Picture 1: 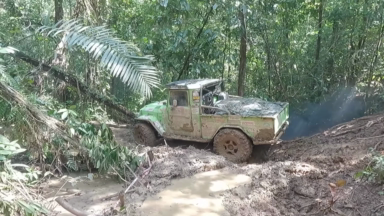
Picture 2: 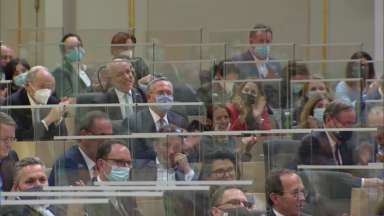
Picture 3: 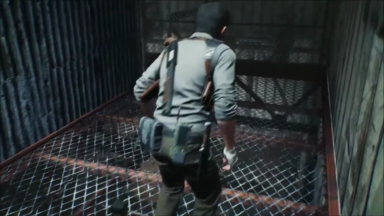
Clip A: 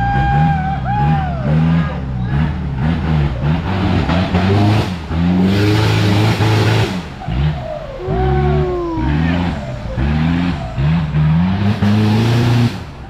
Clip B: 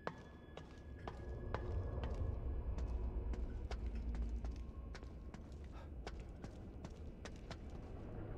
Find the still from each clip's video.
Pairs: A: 1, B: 3